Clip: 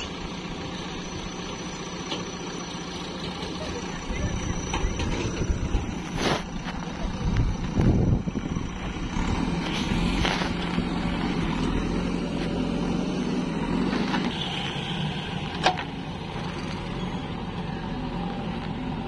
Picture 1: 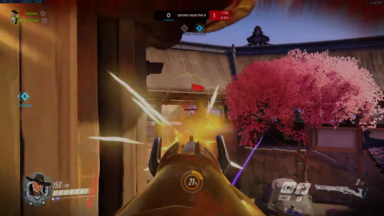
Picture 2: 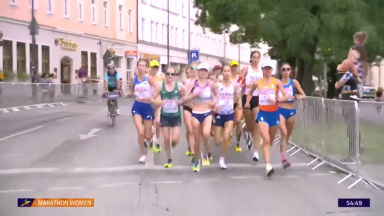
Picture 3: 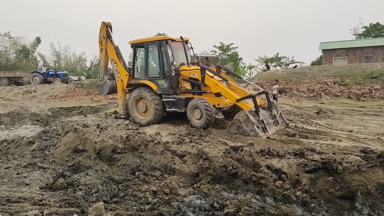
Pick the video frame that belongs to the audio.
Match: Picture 3